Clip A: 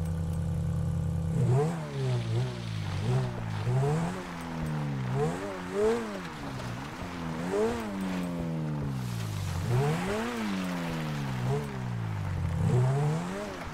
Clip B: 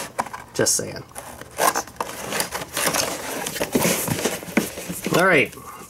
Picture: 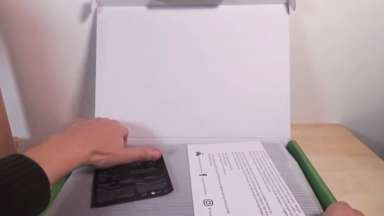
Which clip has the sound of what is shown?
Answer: B